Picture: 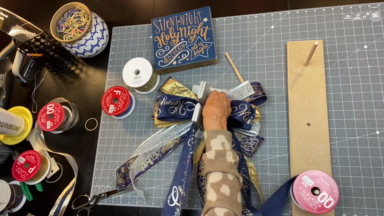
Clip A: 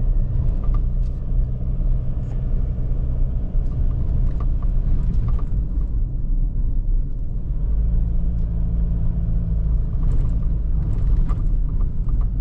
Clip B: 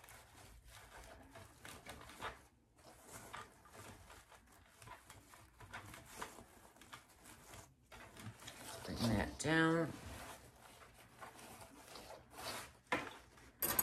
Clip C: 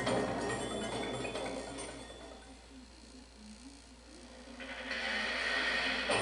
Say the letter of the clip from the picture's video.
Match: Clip B